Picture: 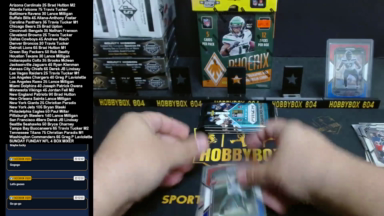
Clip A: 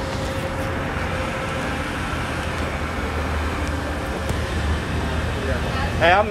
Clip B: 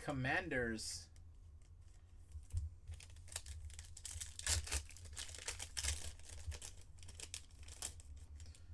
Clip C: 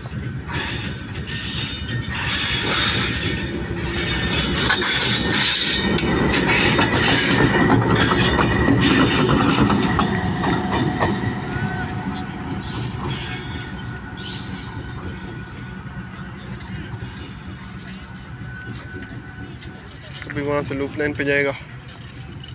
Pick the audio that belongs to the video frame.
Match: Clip B